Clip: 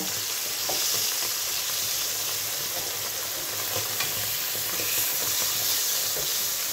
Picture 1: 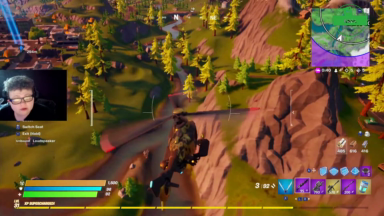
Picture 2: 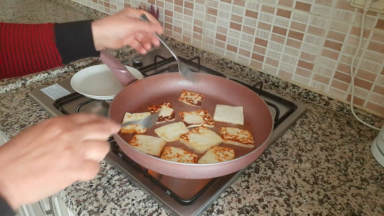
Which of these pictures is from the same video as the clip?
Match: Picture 2